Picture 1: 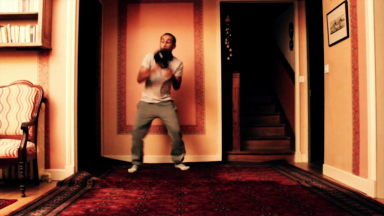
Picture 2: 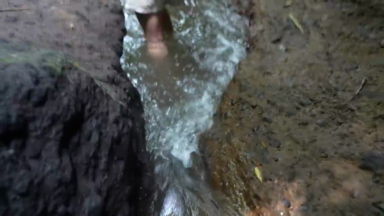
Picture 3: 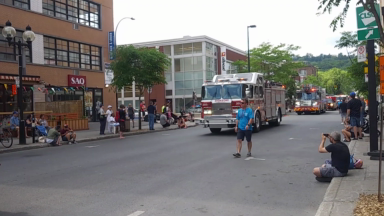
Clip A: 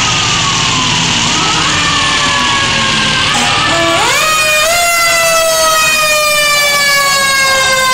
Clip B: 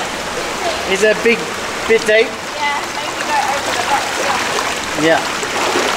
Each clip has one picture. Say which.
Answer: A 3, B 2